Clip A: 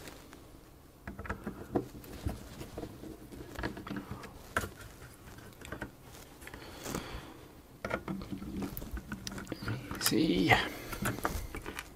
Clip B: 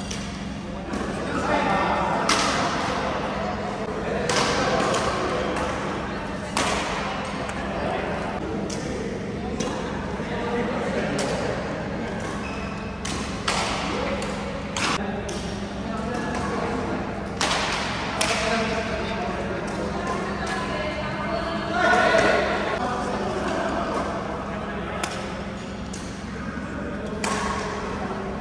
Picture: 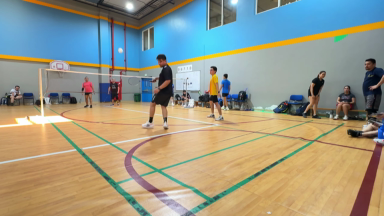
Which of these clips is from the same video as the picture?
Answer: B